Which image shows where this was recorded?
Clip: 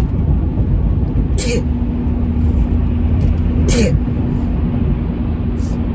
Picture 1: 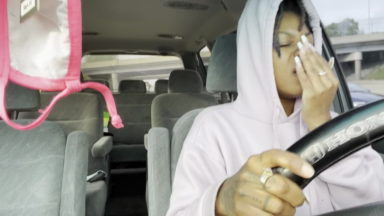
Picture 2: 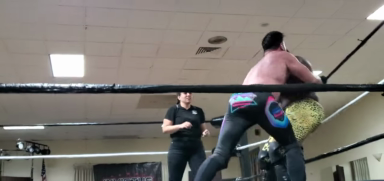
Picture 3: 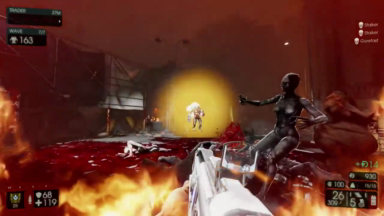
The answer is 1